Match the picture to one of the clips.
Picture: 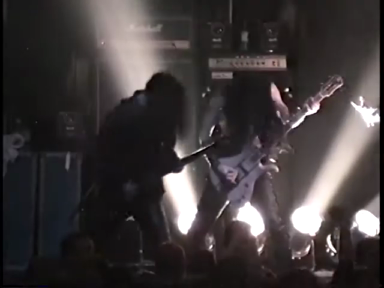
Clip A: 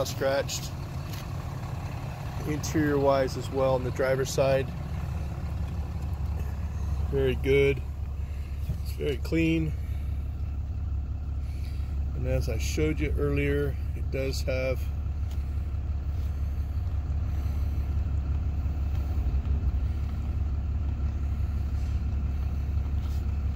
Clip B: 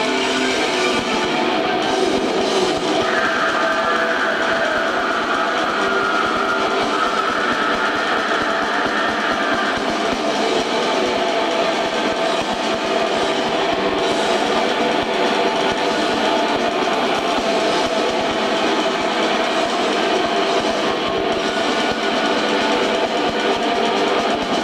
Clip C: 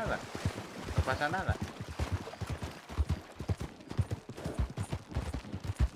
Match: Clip B